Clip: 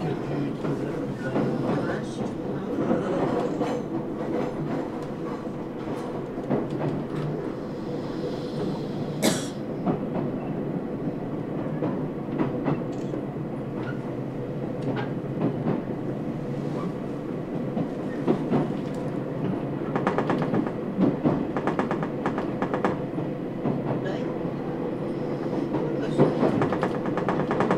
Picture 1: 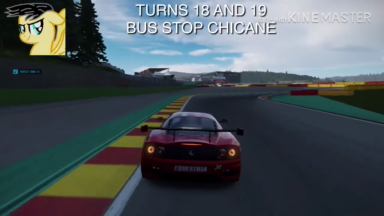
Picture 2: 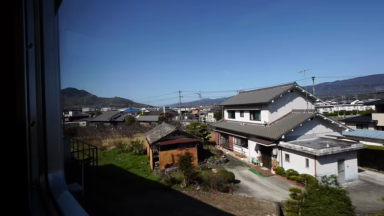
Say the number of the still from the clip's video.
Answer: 2